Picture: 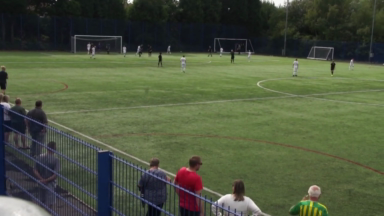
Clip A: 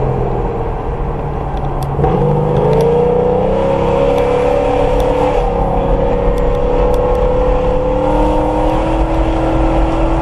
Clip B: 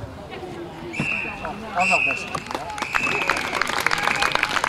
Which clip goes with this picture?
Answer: B